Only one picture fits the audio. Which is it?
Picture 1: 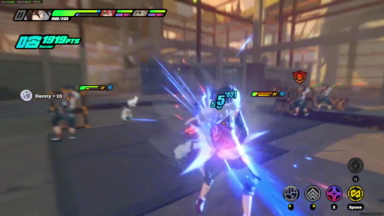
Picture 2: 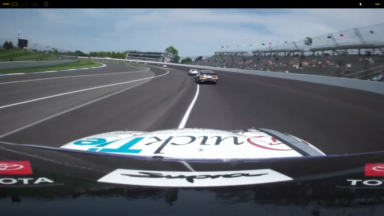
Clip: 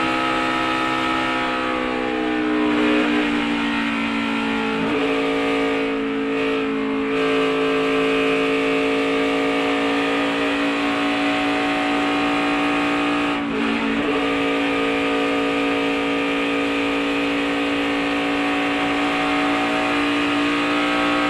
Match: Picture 2